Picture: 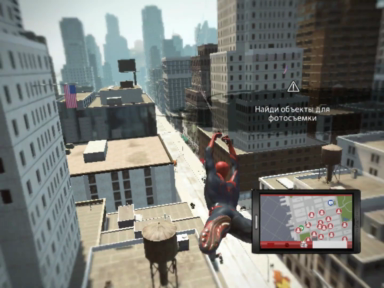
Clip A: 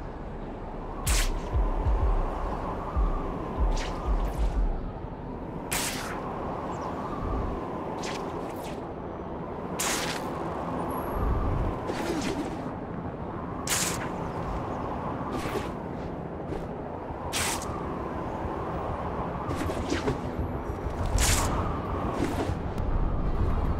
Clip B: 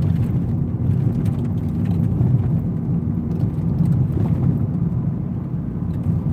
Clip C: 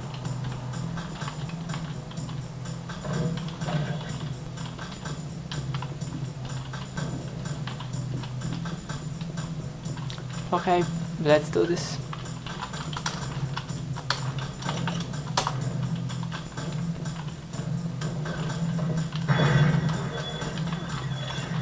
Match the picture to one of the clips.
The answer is A